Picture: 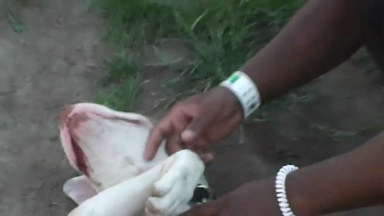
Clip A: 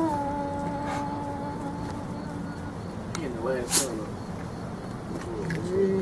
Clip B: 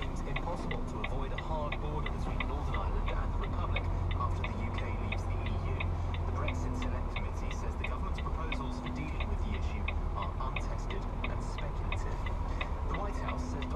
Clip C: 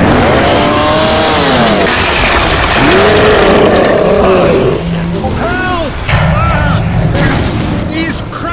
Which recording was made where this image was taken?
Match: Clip A